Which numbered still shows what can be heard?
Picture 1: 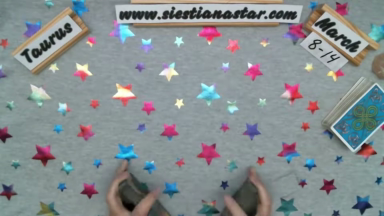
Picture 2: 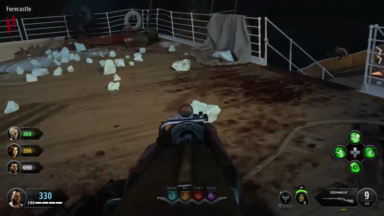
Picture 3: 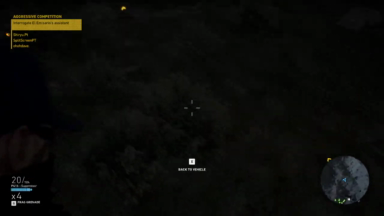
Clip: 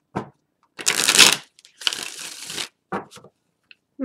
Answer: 1